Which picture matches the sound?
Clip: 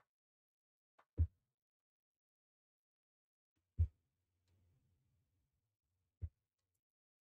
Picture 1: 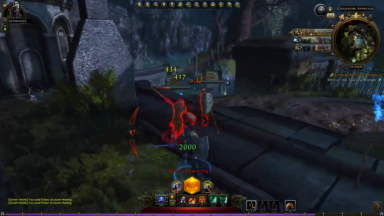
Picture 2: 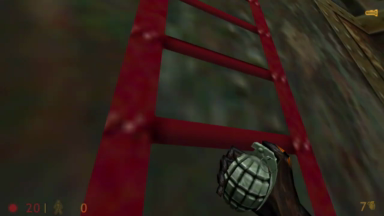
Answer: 2